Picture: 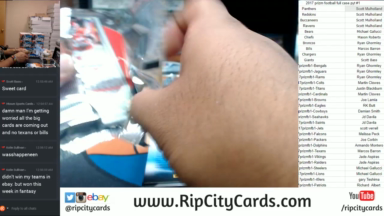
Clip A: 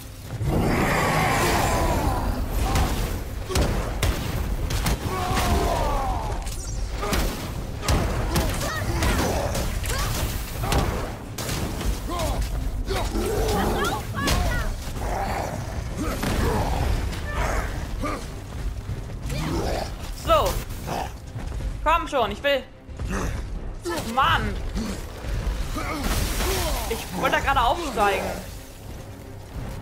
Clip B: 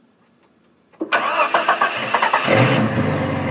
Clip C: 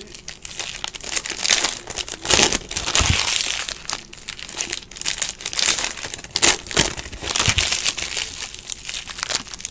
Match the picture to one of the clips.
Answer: C